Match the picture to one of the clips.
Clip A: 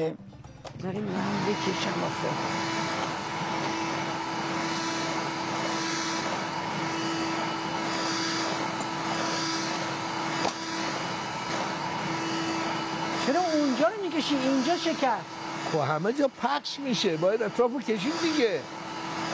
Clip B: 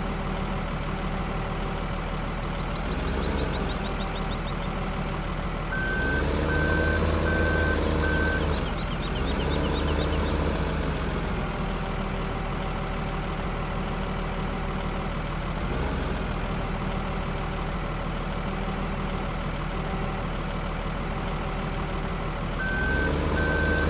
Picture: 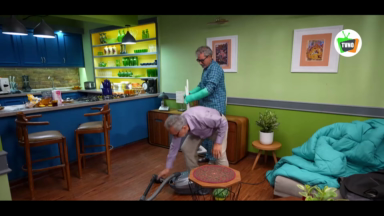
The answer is A